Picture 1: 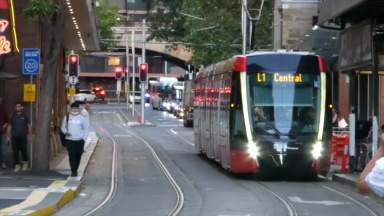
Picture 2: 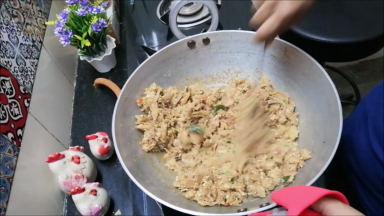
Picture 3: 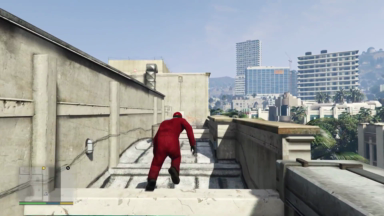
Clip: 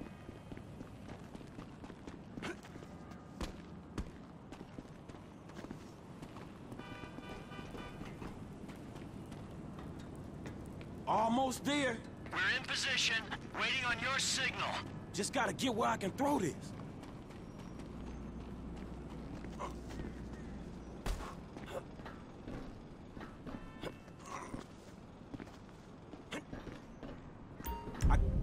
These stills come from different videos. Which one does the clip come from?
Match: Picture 3